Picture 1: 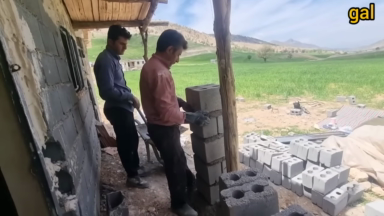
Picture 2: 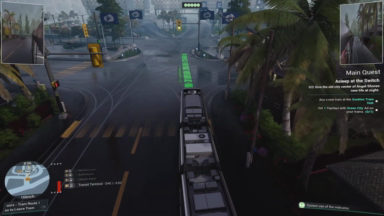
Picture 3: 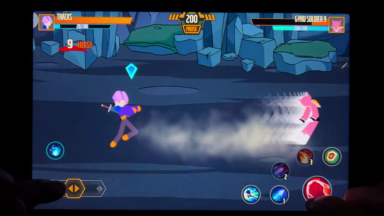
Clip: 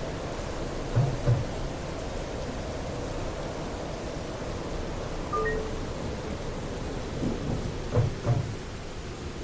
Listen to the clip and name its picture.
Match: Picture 2